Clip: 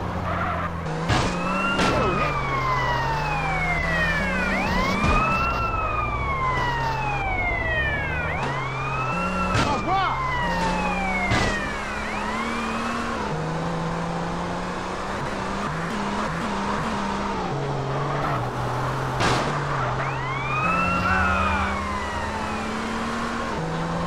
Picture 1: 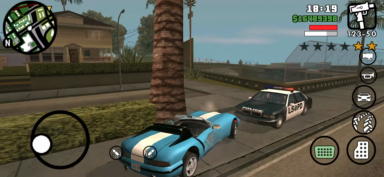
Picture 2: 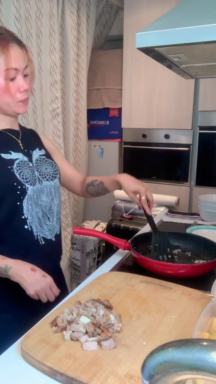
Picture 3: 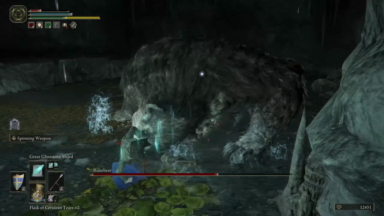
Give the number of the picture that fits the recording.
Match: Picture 1